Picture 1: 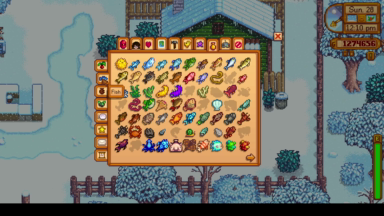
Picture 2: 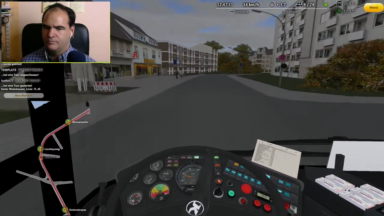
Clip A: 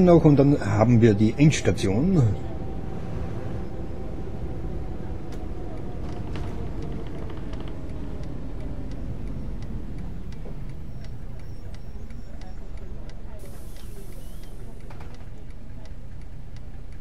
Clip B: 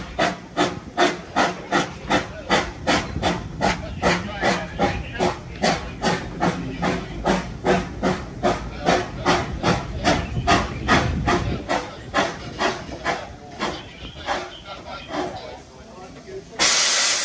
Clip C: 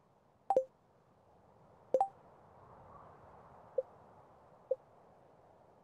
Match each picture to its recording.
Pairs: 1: C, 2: A